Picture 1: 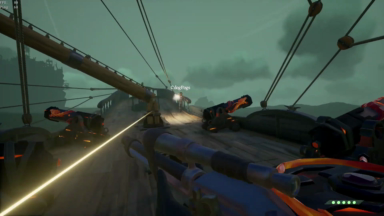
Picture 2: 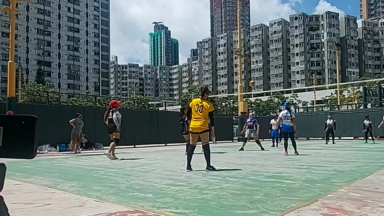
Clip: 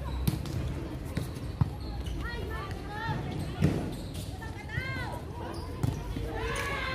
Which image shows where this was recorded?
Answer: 2